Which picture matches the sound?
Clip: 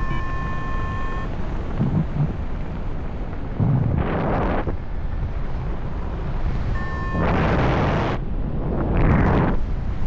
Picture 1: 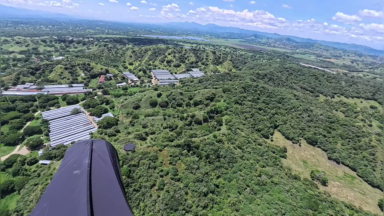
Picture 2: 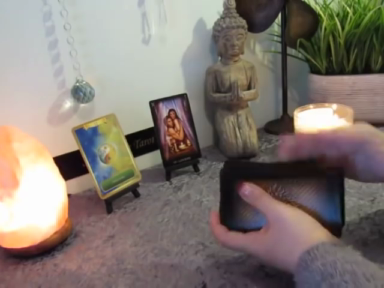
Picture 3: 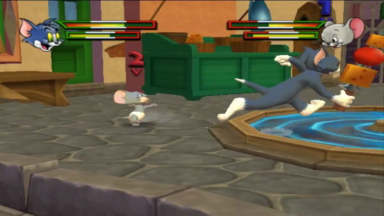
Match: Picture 1